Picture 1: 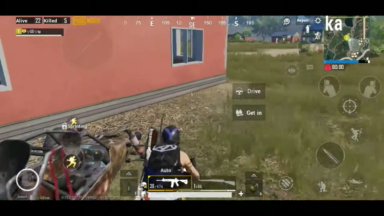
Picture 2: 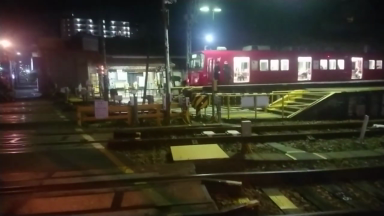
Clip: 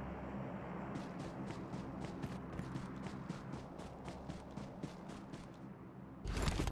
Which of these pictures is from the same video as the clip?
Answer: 1